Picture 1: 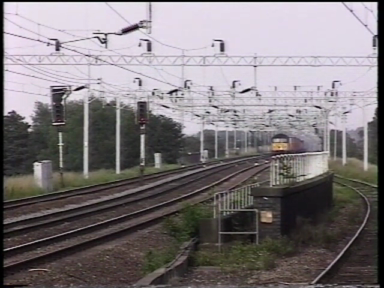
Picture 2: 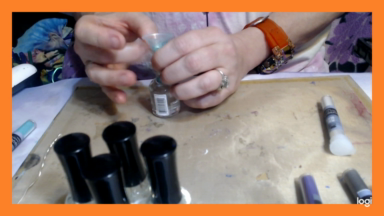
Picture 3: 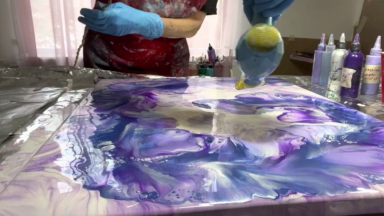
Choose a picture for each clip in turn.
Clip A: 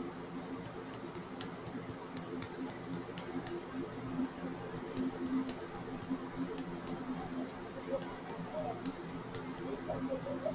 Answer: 2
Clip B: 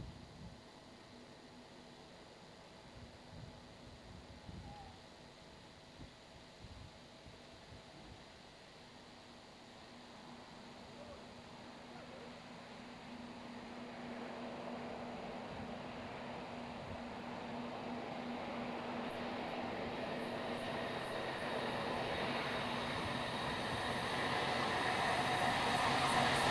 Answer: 1